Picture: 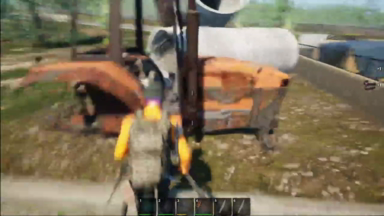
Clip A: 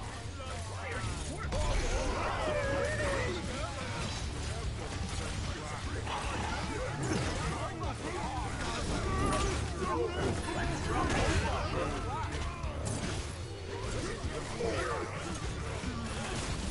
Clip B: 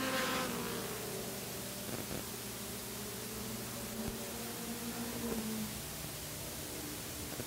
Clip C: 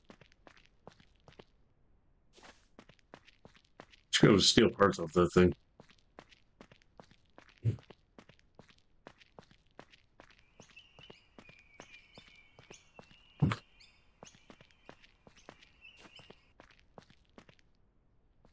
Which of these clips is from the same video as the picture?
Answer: C